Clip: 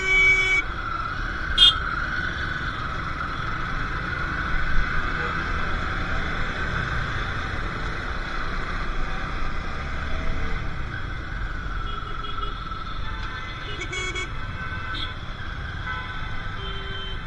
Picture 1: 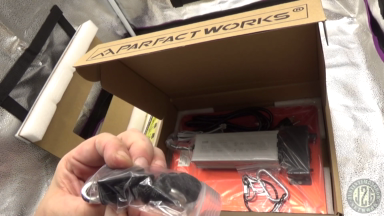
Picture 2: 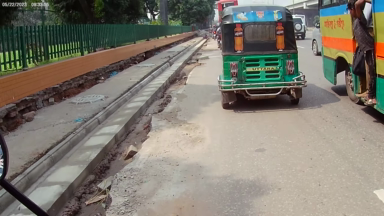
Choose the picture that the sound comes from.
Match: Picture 2